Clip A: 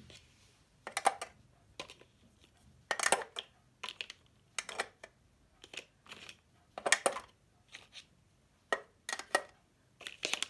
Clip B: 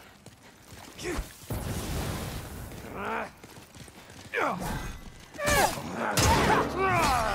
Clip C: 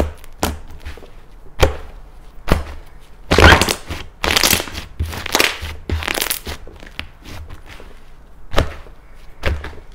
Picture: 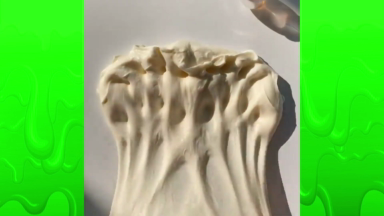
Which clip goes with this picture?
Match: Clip C